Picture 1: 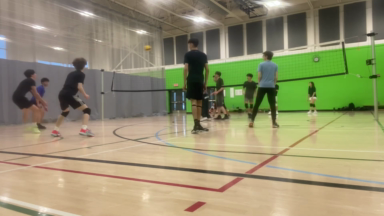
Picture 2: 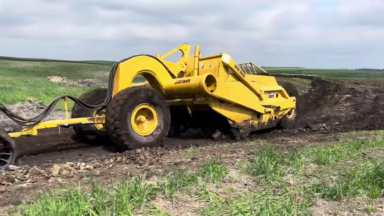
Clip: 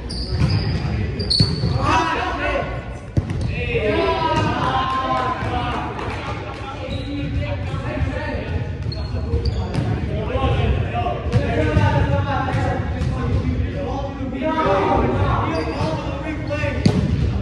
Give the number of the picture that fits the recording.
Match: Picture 1